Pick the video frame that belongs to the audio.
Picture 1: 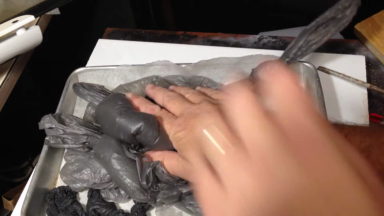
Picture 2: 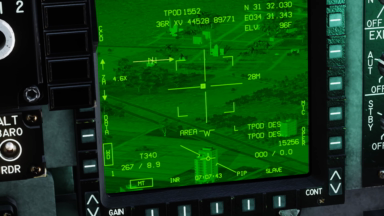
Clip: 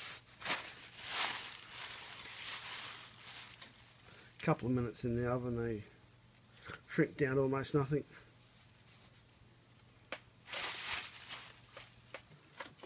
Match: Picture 1